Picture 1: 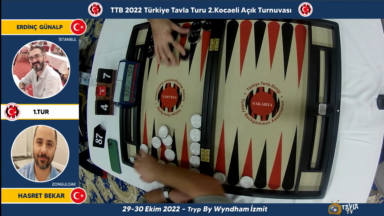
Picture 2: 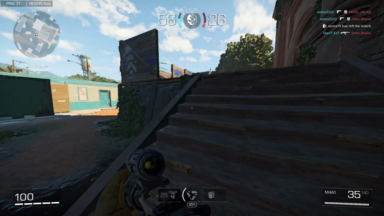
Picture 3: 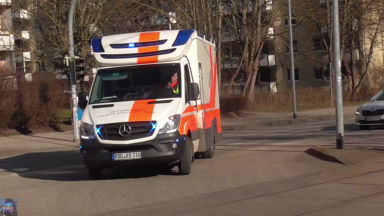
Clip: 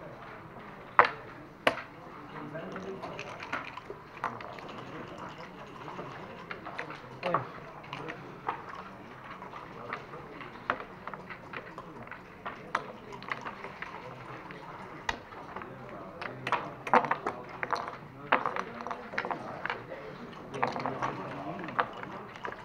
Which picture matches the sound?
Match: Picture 1